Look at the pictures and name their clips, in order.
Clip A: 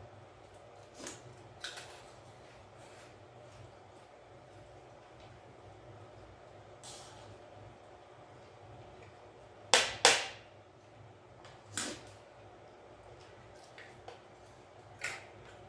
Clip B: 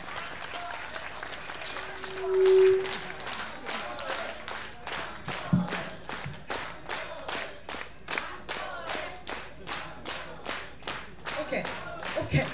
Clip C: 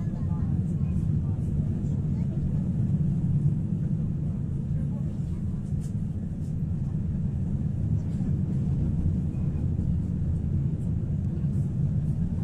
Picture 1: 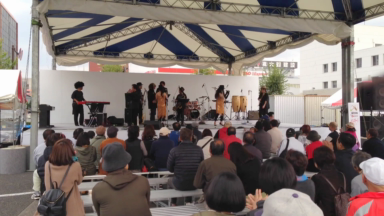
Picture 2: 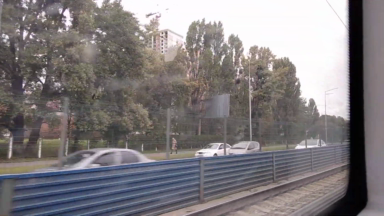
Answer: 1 B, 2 C